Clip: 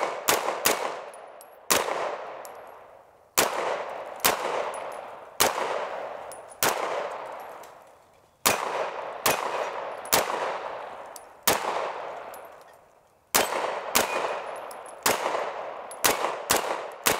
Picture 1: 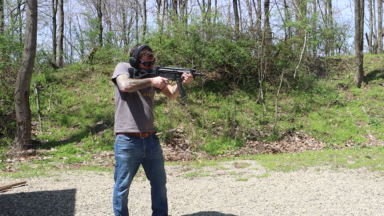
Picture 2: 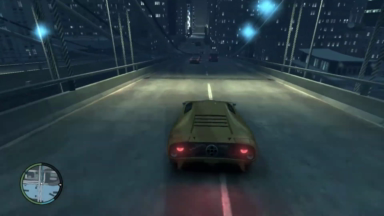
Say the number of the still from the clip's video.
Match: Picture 1